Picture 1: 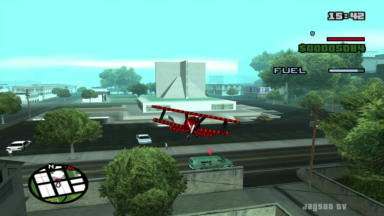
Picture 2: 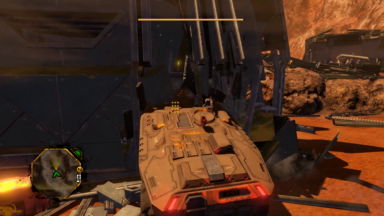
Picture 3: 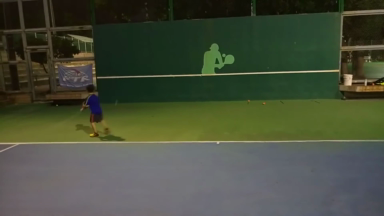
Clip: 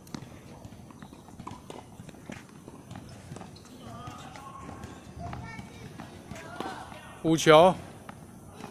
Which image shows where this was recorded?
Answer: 3